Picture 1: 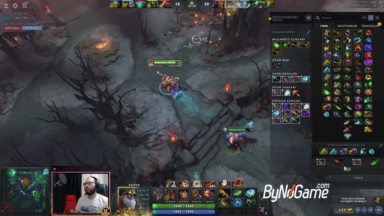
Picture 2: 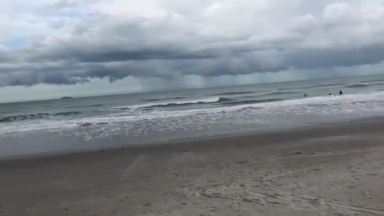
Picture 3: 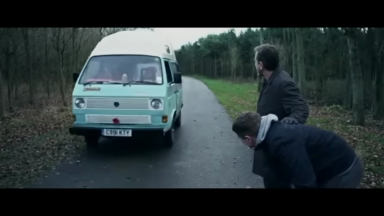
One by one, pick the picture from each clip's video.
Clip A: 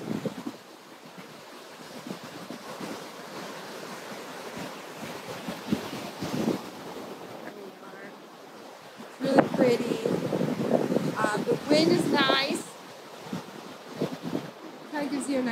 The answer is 2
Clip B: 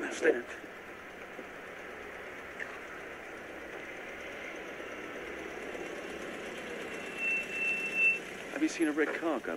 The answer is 3